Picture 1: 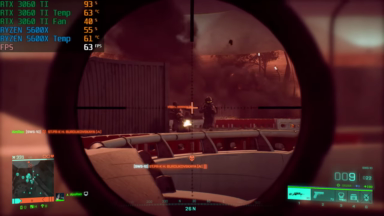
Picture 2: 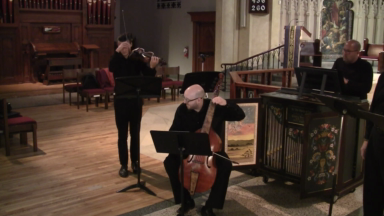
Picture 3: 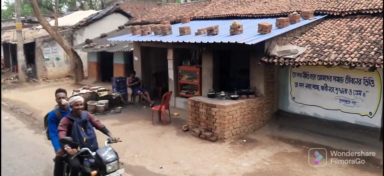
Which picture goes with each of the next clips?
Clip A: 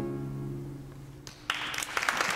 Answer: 2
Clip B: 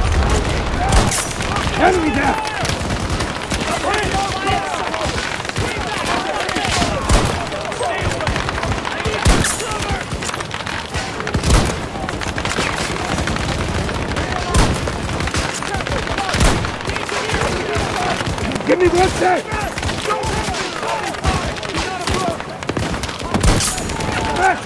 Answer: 1